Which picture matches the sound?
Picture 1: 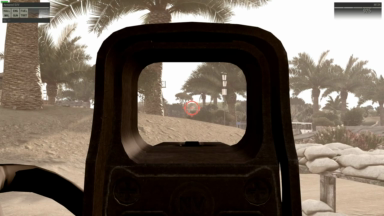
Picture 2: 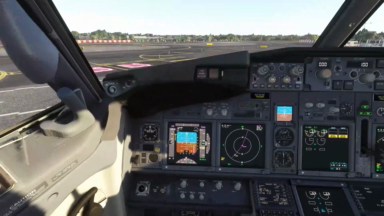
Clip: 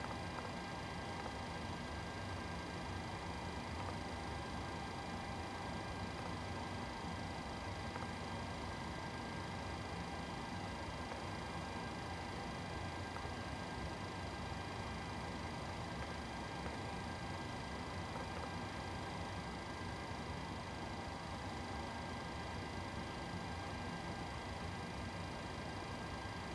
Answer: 2